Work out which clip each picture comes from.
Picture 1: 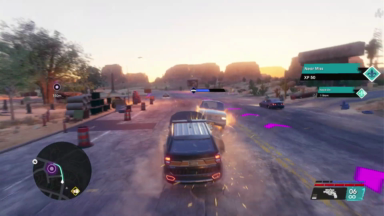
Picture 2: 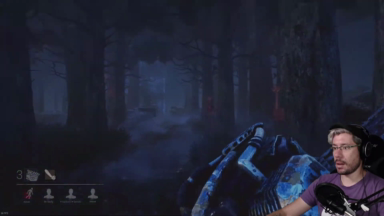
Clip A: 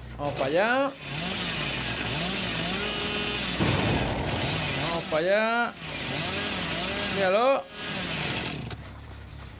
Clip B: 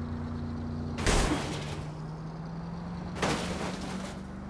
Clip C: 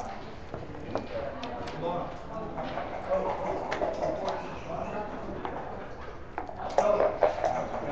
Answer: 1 B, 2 A